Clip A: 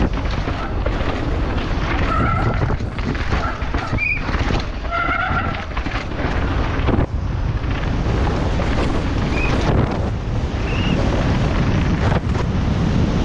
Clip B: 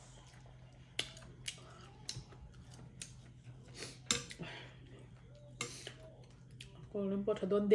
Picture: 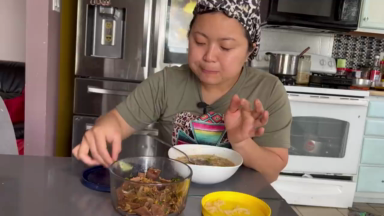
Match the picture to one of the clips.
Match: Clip B